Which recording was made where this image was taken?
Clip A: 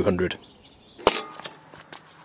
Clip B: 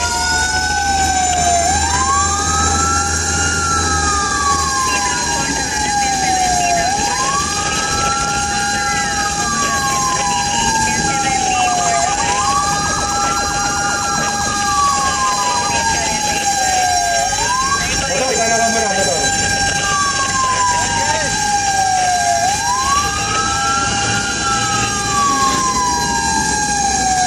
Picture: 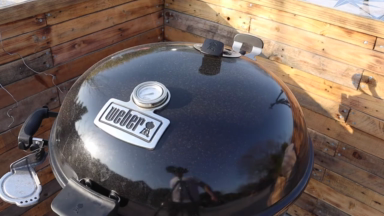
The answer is A